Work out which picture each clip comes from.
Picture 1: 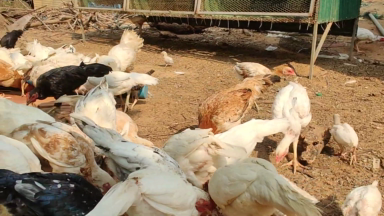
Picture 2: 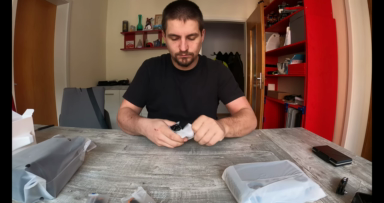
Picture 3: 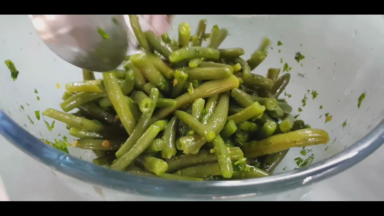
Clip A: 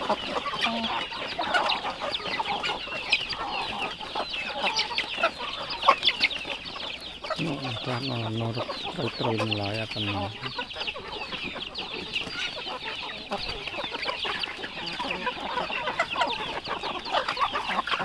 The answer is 1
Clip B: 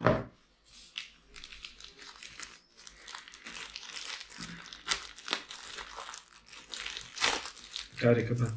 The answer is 2